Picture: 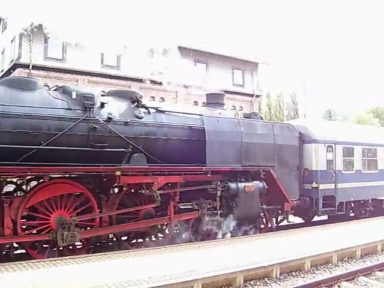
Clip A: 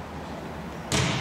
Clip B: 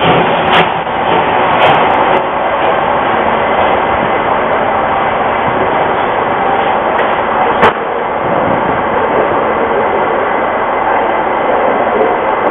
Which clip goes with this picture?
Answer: B